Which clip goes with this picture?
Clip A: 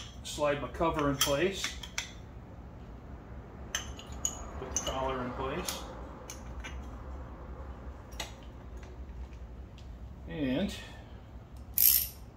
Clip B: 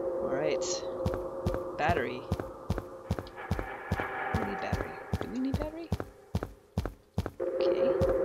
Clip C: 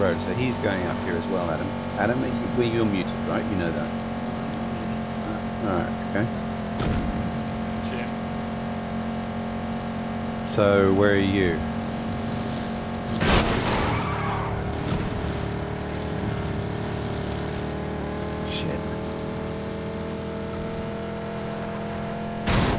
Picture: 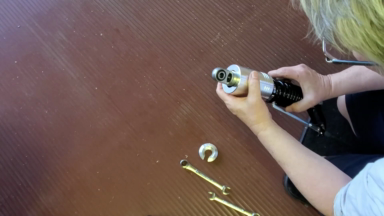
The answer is A